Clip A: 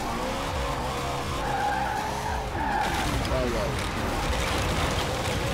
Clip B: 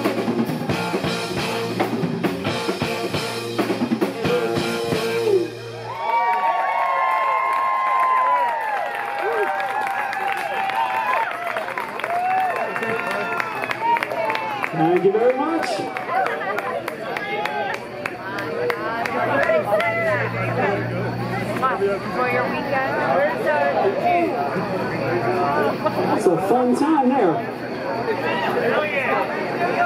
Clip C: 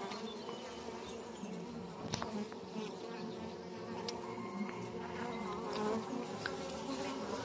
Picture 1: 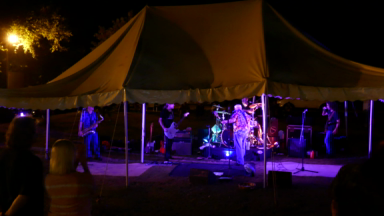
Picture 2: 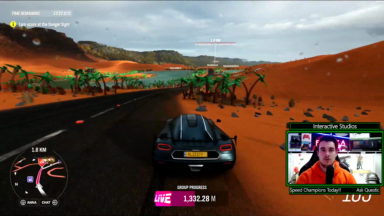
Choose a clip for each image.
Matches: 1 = B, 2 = A